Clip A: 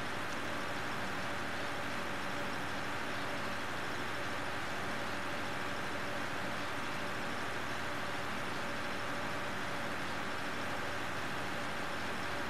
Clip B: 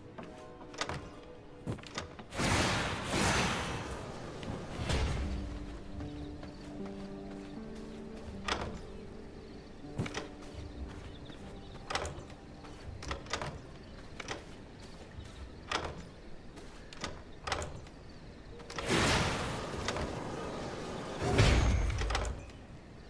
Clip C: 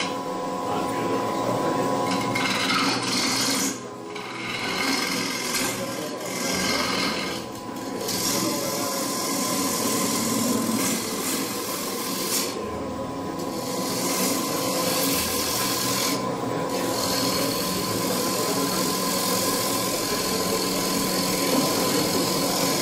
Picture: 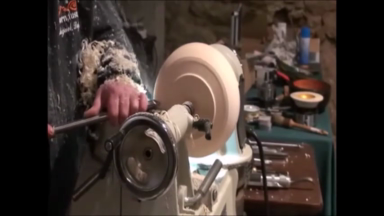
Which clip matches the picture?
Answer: C